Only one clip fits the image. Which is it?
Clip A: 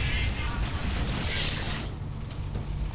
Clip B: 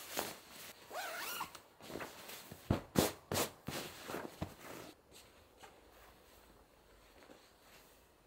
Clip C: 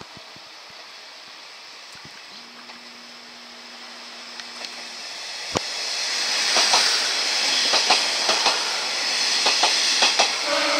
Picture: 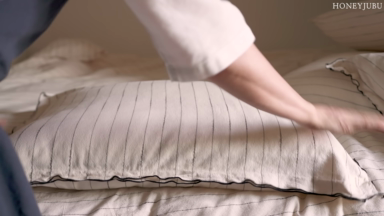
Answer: B